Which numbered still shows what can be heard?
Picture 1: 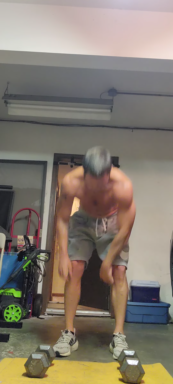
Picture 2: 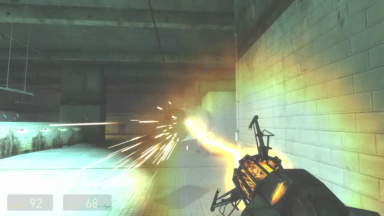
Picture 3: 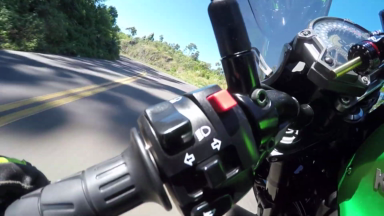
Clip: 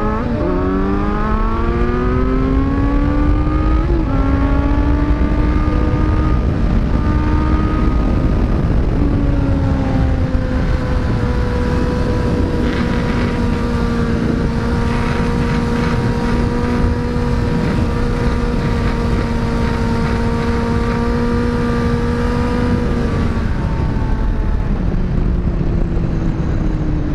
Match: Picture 3